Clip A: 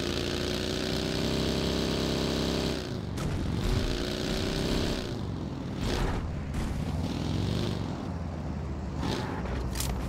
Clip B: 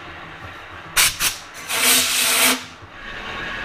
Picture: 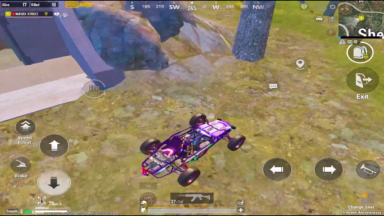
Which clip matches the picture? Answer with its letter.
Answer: A